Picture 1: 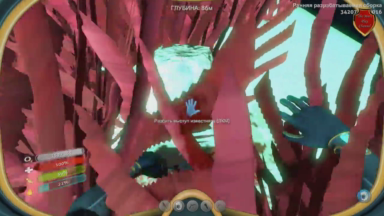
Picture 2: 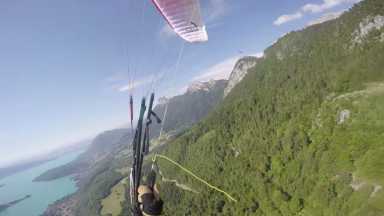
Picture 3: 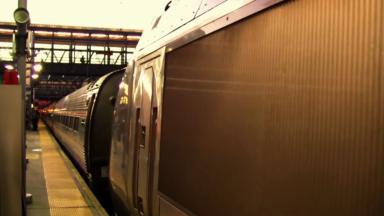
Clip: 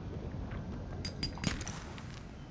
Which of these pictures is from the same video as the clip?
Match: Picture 1